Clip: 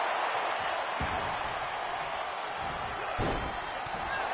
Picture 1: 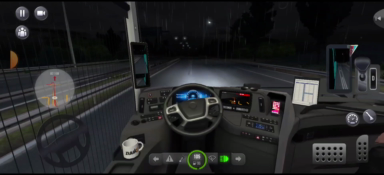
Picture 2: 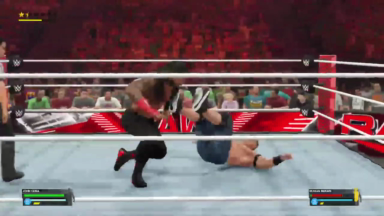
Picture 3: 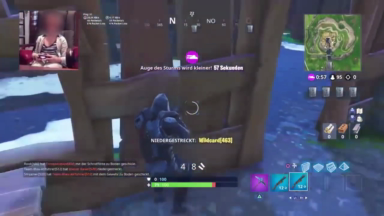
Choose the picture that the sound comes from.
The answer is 2